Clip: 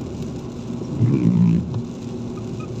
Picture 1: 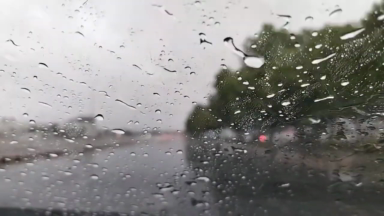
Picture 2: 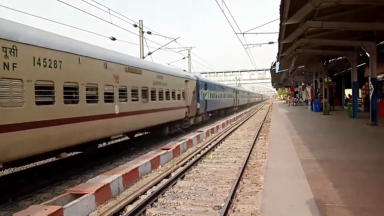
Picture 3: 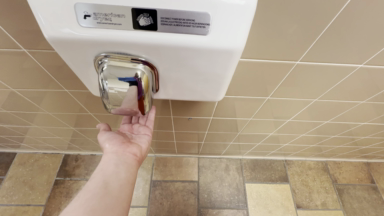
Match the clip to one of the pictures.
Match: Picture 1